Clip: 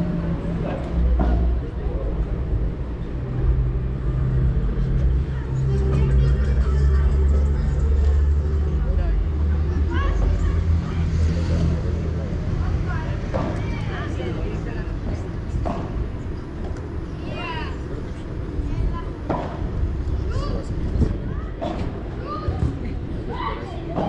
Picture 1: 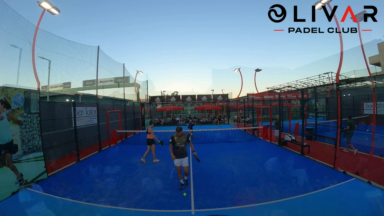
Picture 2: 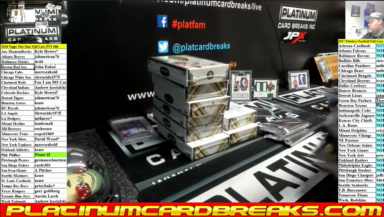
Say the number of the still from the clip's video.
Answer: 1